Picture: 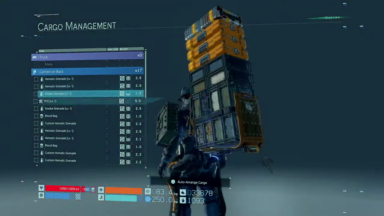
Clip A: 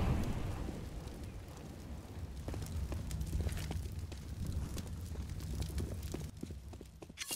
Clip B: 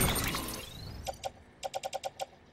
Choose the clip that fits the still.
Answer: B